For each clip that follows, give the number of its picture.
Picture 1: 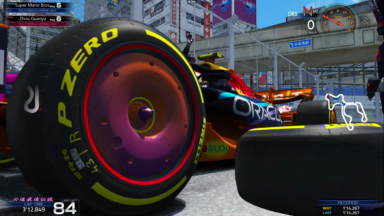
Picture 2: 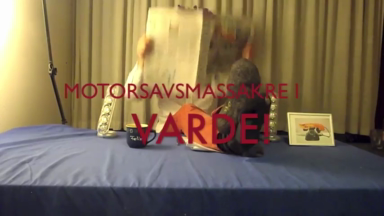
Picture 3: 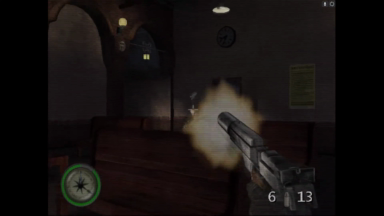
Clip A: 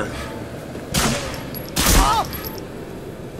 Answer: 3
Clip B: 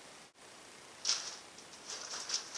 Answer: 2